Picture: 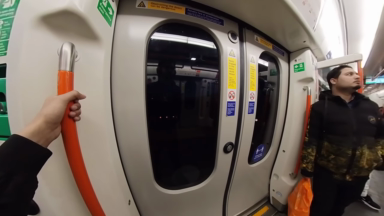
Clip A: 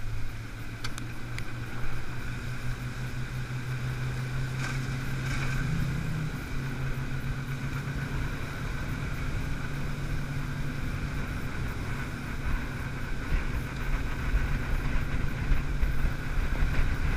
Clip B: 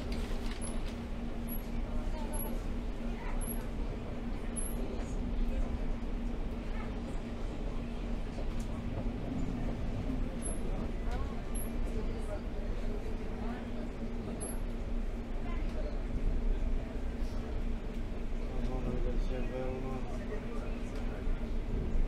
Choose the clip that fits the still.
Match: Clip B